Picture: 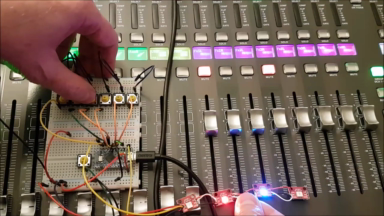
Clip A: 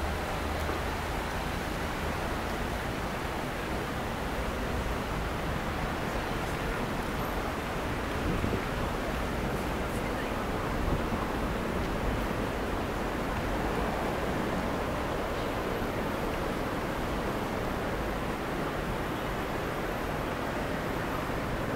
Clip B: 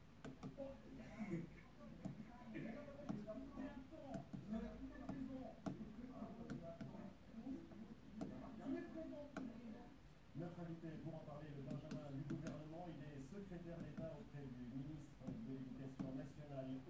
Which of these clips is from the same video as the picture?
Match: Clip B